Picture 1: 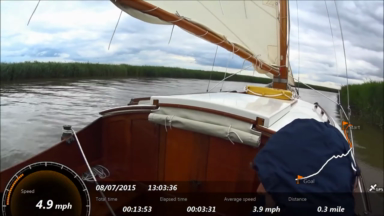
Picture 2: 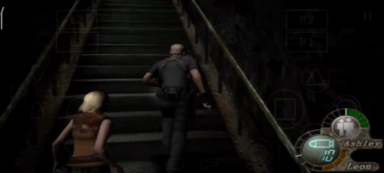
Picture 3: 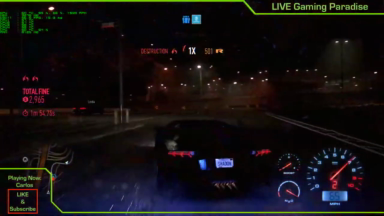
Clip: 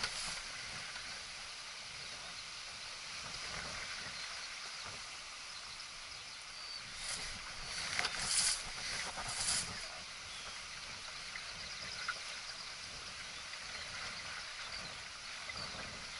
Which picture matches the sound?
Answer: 1